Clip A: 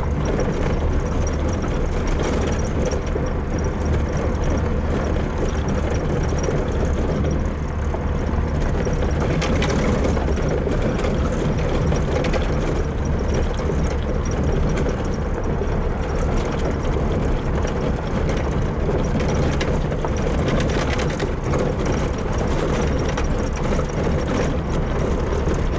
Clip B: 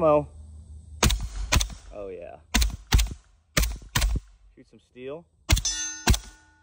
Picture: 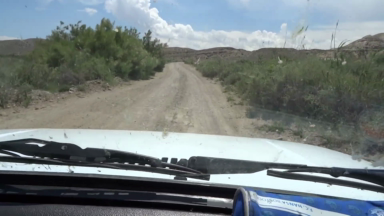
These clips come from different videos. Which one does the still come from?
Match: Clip A